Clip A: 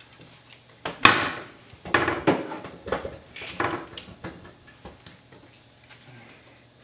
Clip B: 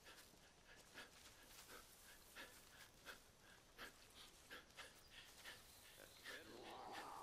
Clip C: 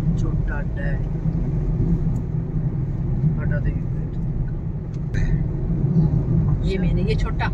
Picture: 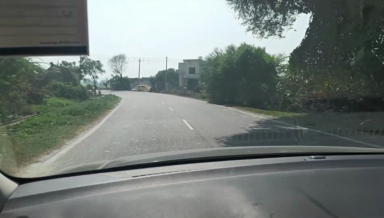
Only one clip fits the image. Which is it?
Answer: C